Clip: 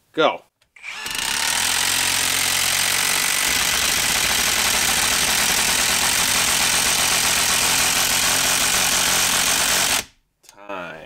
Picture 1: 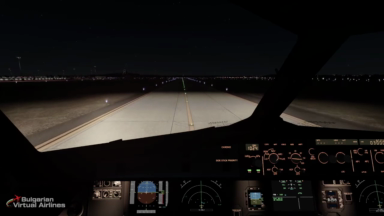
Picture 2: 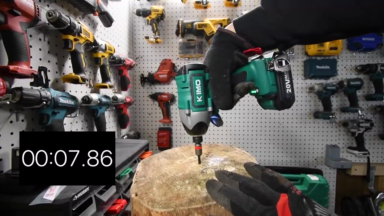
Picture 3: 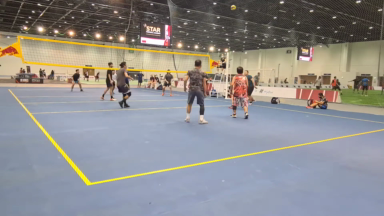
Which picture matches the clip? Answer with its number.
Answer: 2